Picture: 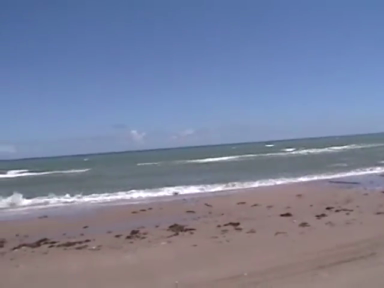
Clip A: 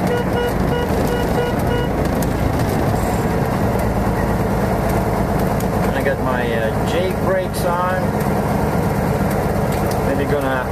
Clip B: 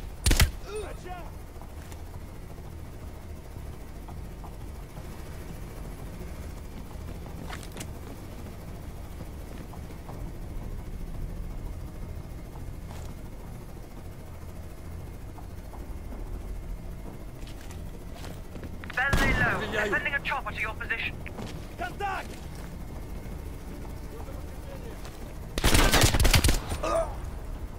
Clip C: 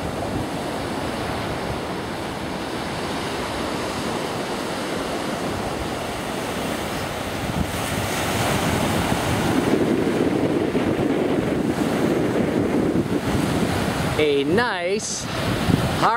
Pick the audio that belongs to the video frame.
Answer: C